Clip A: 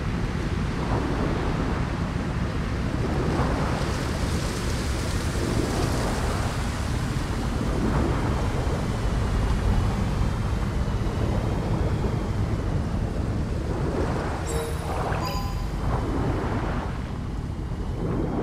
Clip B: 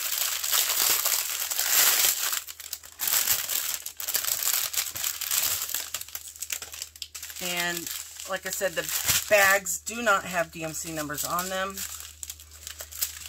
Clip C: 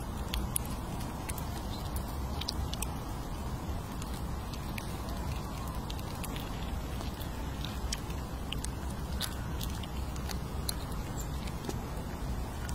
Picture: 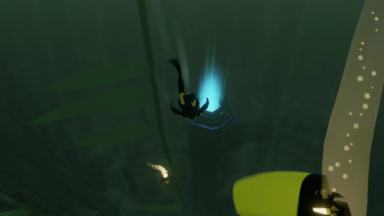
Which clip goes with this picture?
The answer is A